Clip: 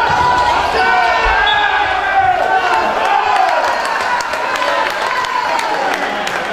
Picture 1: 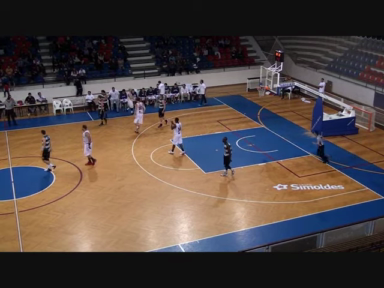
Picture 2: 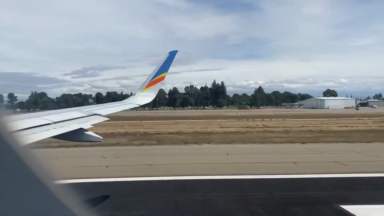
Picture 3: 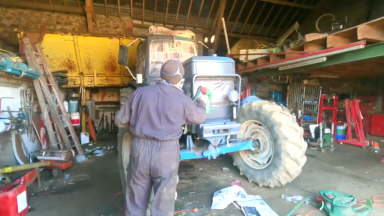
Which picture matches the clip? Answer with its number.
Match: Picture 1